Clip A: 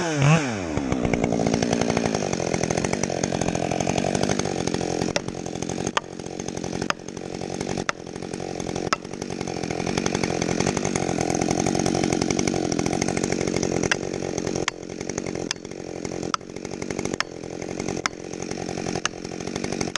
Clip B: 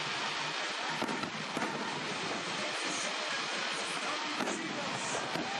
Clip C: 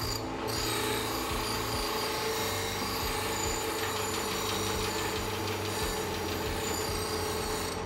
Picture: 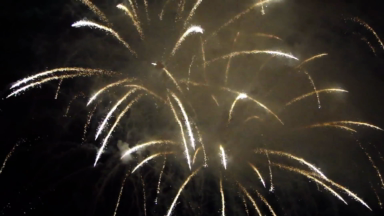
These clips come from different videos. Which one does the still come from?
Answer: B